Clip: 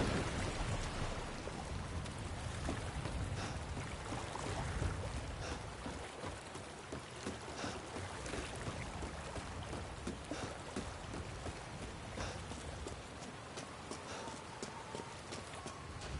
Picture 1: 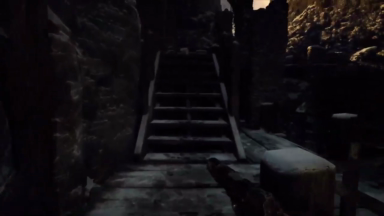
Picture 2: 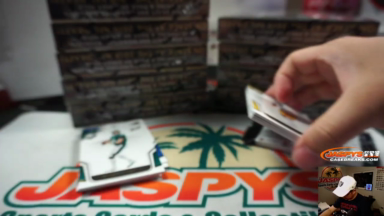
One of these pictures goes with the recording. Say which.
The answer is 1